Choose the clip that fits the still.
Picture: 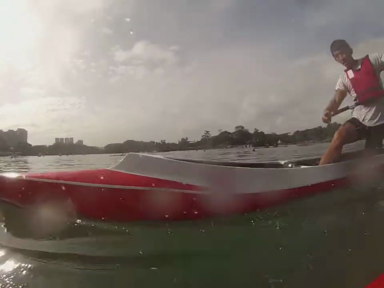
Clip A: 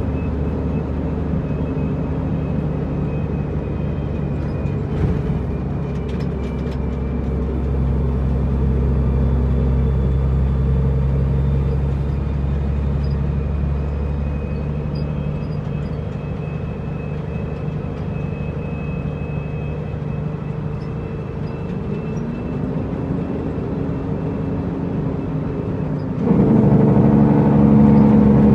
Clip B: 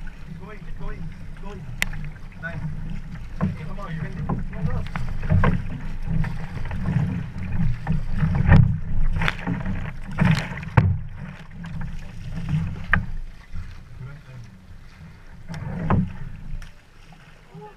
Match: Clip B